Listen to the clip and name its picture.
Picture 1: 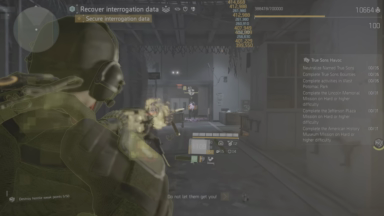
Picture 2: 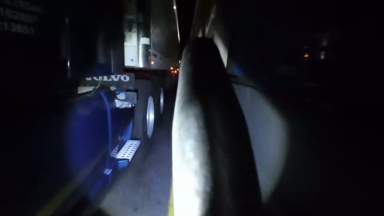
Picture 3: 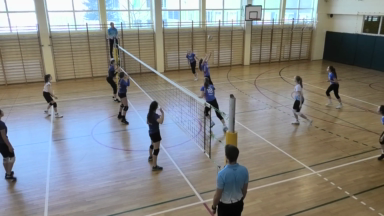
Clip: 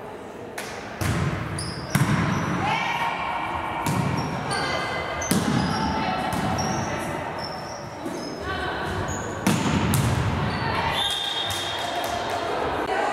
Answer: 3